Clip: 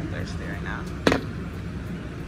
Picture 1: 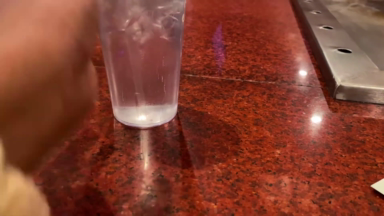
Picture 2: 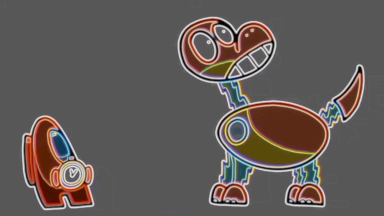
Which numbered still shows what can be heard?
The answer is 1